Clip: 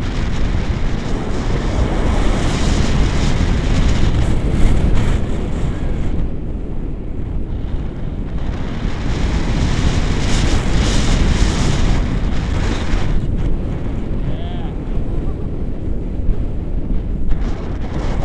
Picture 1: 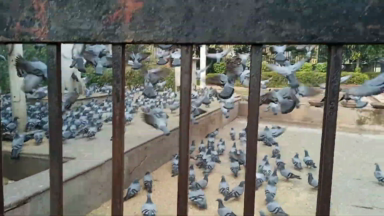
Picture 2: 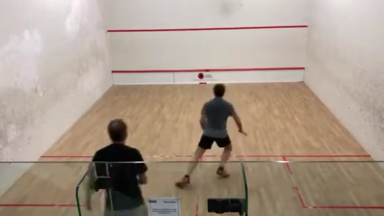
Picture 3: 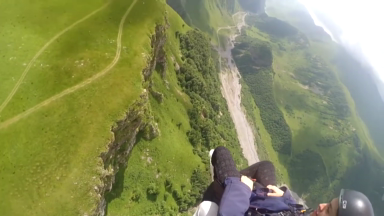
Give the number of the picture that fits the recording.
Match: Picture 3